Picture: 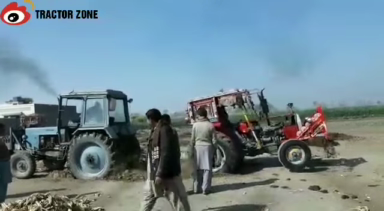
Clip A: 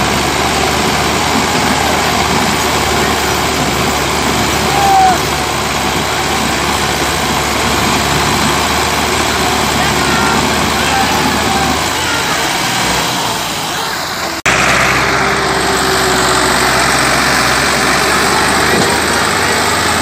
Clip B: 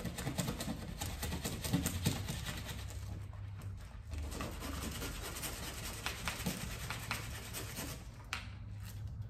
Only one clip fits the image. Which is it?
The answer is A